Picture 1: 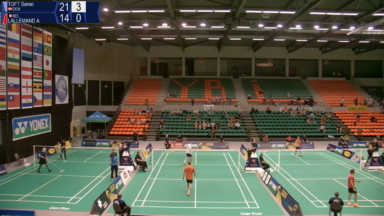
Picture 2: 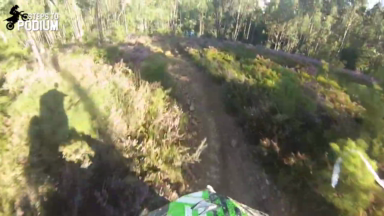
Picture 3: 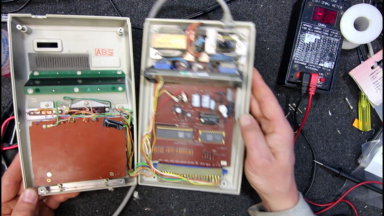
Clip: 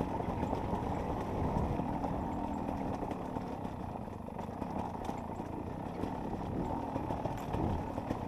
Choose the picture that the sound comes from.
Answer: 2